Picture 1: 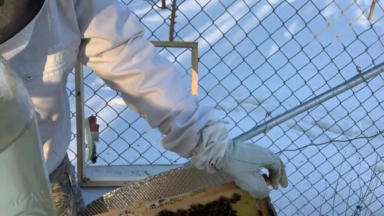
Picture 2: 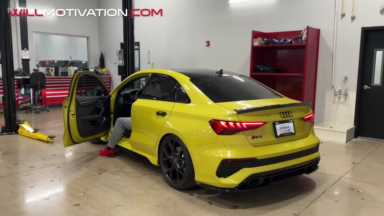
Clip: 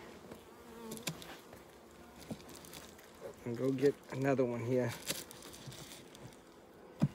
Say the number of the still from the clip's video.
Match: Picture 1